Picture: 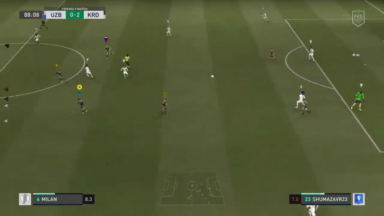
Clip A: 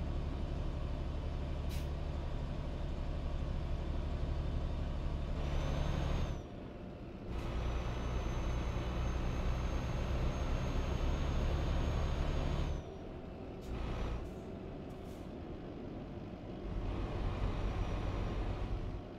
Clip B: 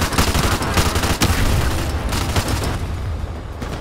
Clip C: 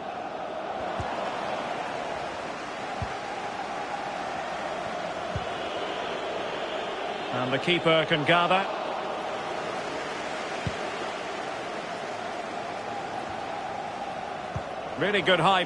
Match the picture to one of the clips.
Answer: C